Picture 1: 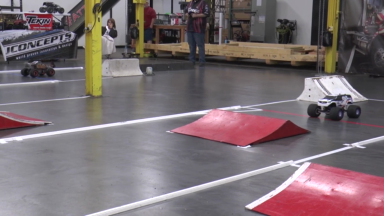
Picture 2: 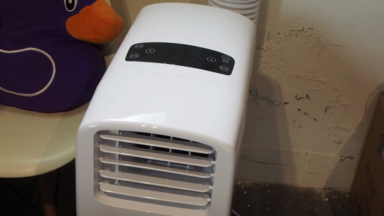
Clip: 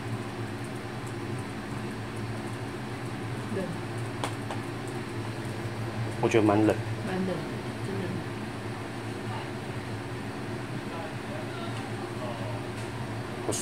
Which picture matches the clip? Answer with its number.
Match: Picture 2